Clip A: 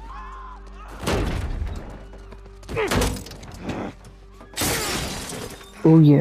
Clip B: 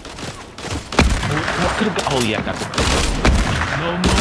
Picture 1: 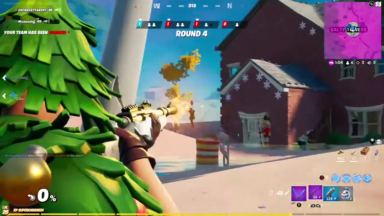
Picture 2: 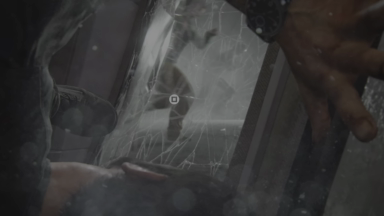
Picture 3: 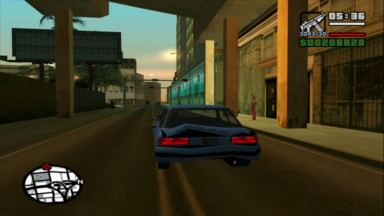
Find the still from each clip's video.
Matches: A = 2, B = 1